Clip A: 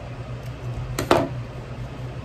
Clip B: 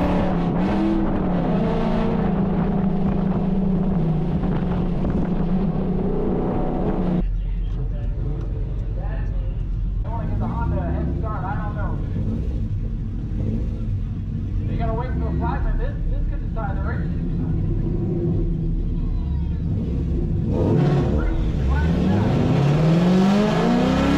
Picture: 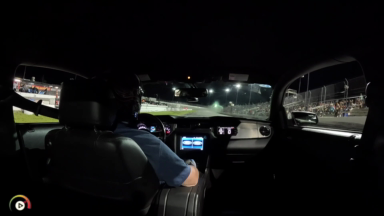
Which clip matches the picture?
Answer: B